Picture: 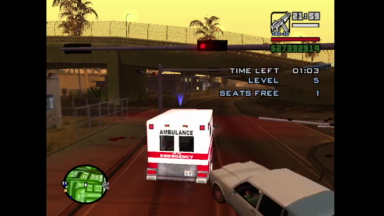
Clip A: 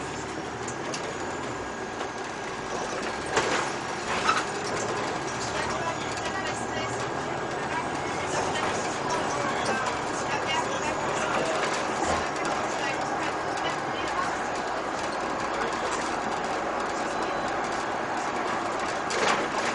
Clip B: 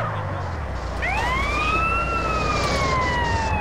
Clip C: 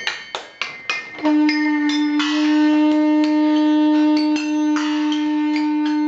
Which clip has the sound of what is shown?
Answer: B